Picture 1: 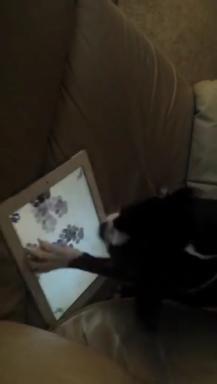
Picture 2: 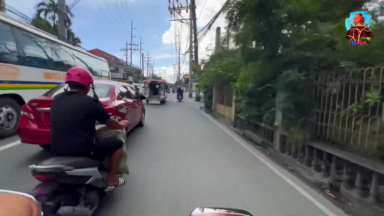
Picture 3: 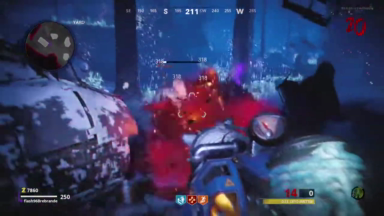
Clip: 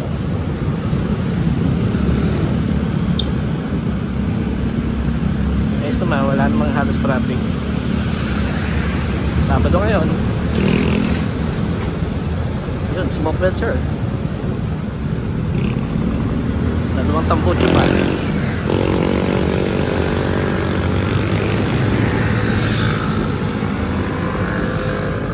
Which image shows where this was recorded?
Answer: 2